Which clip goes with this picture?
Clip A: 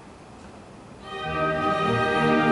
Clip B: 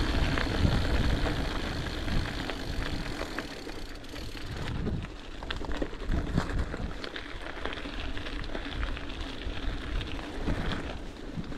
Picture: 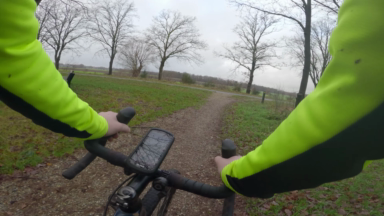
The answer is B